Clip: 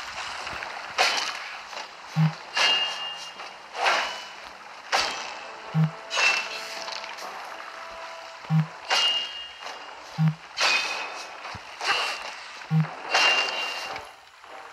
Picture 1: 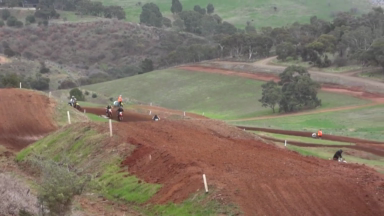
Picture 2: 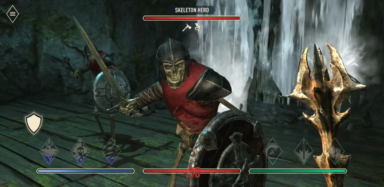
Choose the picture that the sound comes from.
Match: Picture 2